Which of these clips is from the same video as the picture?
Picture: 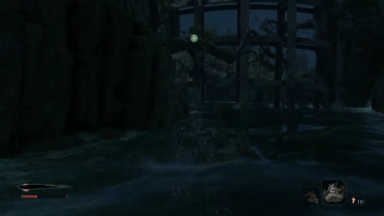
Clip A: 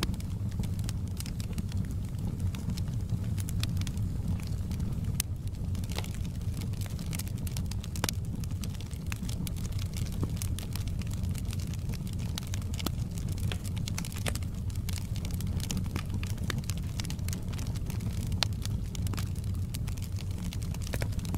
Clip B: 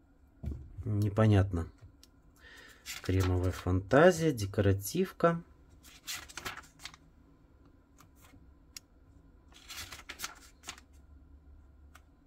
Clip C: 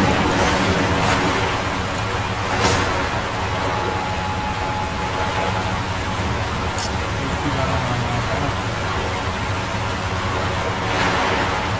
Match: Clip C